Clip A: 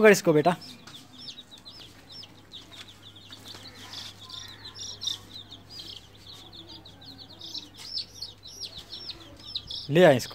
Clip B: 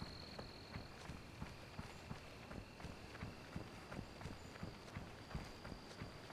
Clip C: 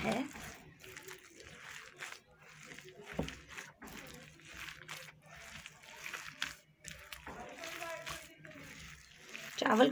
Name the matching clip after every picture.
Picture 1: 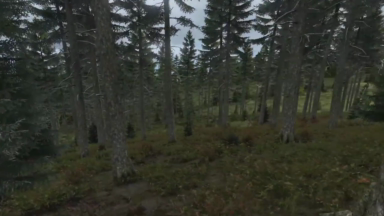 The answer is B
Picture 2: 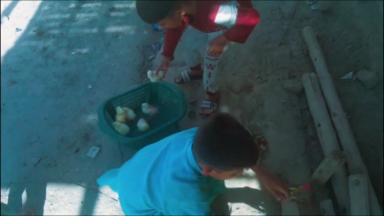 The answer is A